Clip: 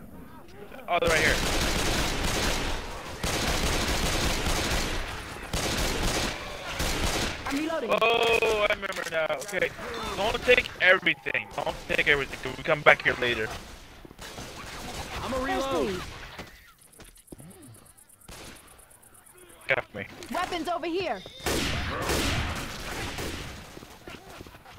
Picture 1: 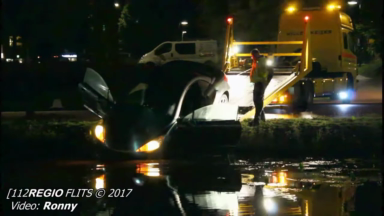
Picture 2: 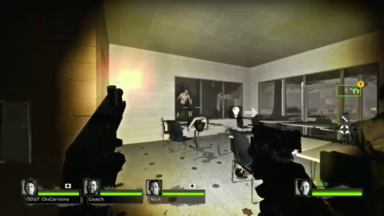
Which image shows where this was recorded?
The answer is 2